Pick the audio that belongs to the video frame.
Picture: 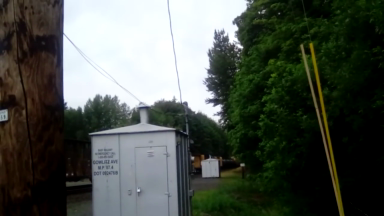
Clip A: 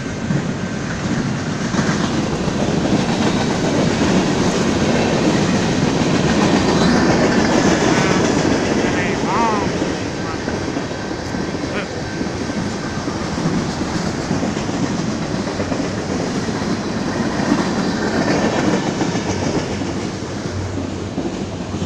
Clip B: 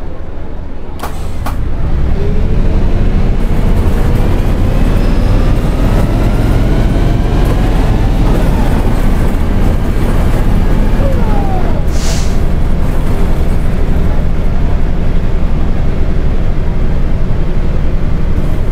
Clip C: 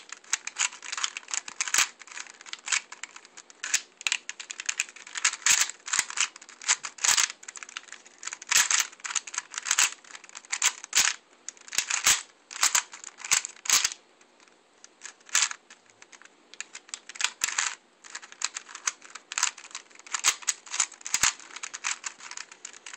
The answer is A